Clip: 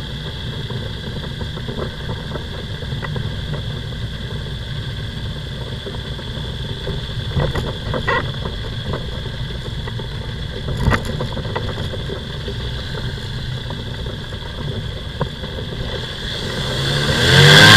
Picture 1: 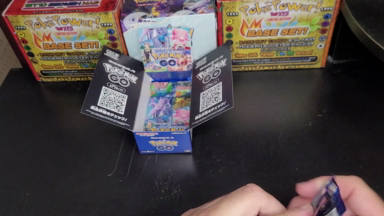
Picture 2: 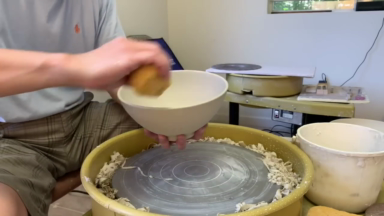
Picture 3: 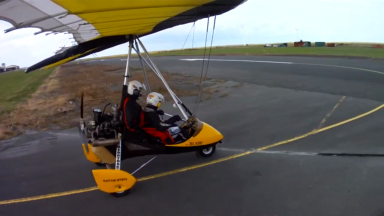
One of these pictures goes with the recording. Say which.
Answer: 3